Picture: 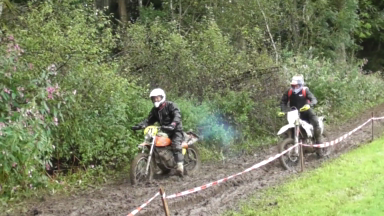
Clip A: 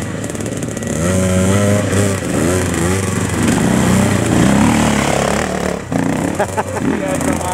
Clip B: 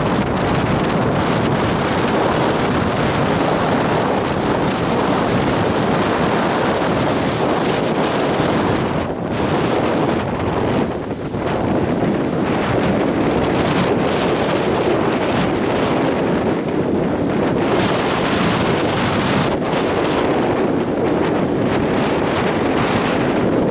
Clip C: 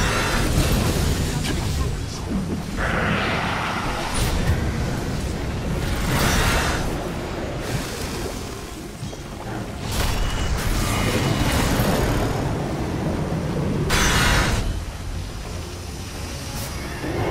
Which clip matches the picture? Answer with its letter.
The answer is A